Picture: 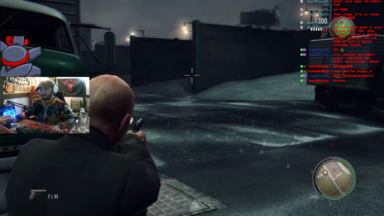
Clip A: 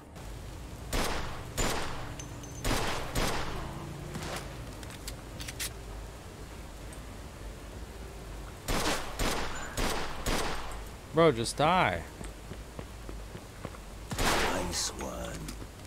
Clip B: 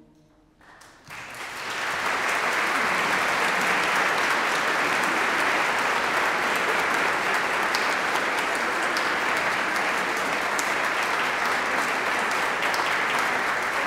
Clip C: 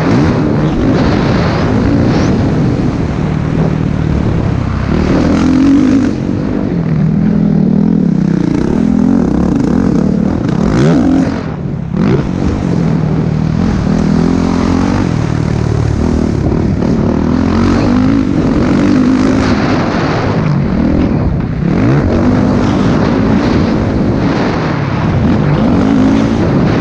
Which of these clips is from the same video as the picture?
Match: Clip A